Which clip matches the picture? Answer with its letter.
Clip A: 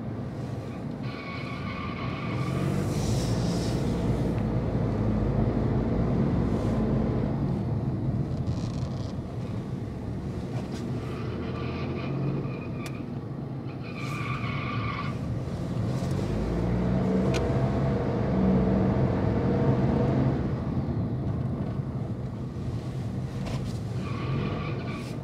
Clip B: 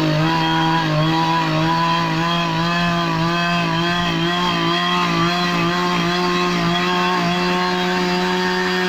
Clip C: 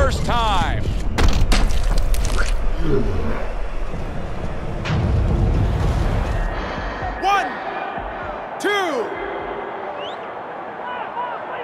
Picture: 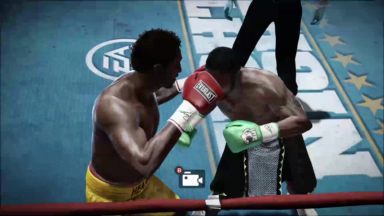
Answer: C